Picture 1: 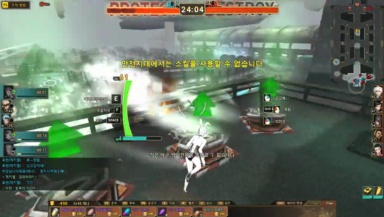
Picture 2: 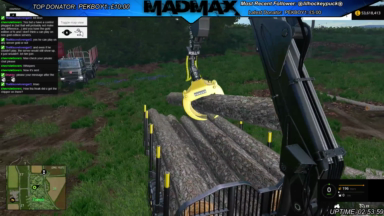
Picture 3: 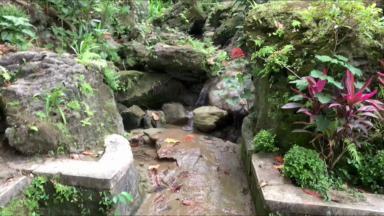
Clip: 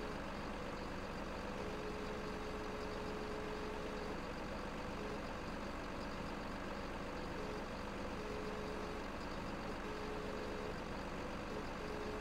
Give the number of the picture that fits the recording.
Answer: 2